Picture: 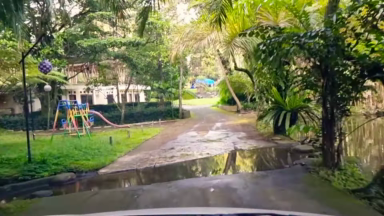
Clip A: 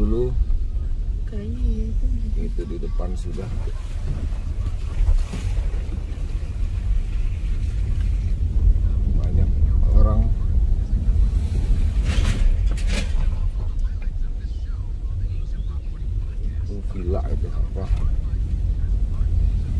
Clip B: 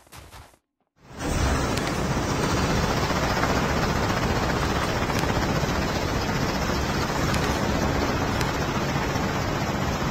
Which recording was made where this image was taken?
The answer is A